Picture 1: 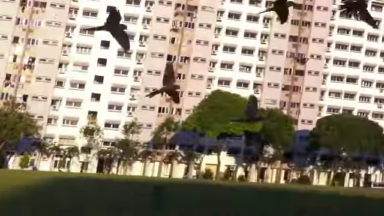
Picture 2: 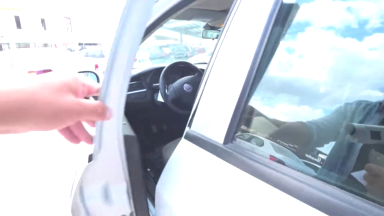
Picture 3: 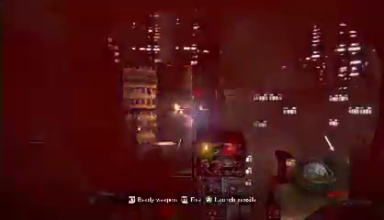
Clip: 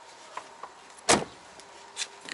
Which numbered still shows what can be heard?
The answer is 2